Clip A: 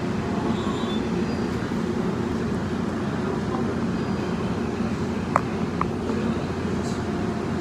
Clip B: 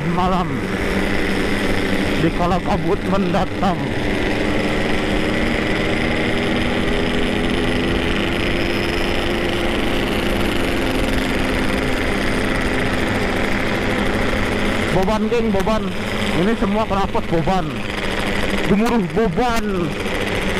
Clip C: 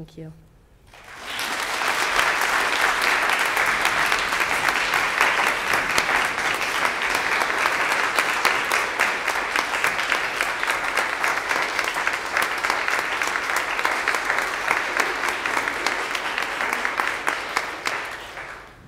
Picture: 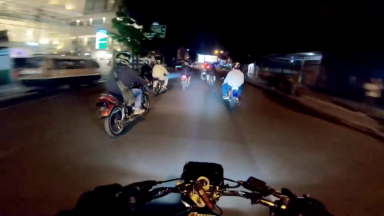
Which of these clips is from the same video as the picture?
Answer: B